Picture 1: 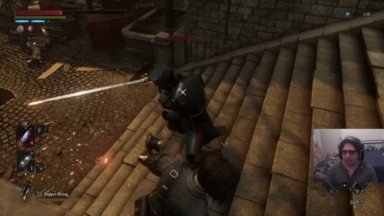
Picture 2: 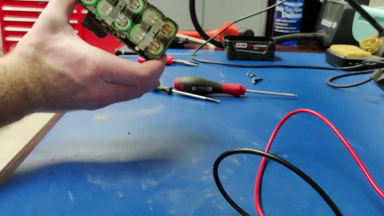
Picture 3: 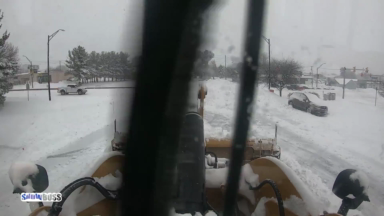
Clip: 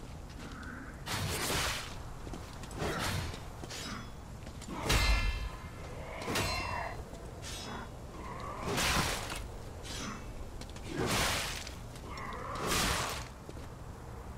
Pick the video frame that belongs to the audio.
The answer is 1